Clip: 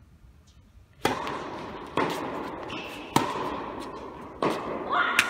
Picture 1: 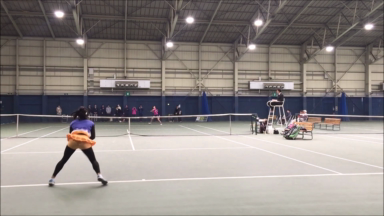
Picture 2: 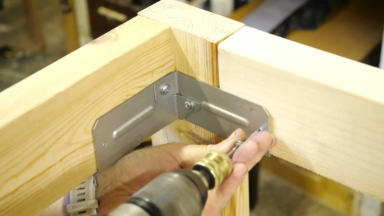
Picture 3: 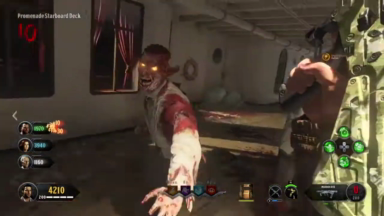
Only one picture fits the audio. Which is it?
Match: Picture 1